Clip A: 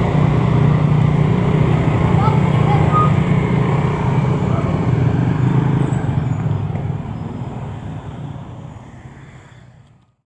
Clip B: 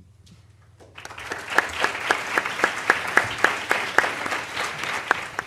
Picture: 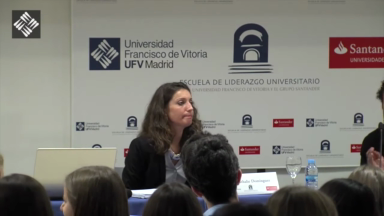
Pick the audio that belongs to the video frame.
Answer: B